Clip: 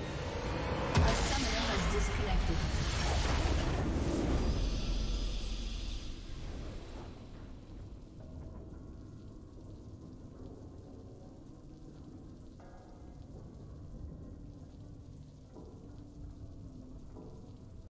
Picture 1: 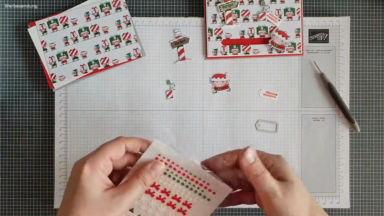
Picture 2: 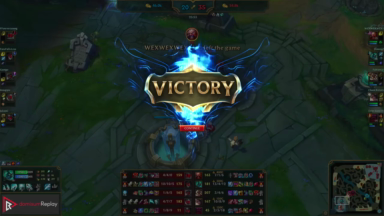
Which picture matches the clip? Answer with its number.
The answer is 2